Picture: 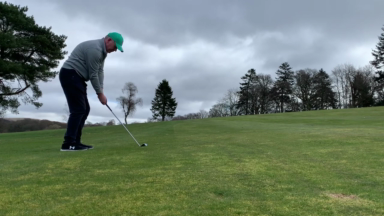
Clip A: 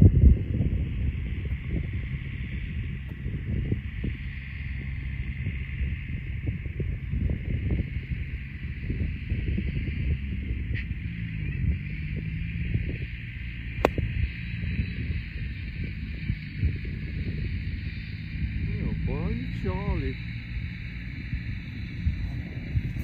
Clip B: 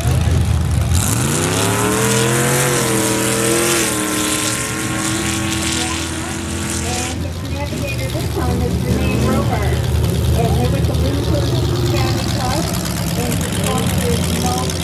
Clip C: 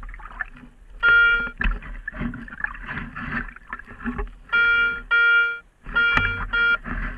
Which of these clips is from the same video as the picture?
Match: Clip A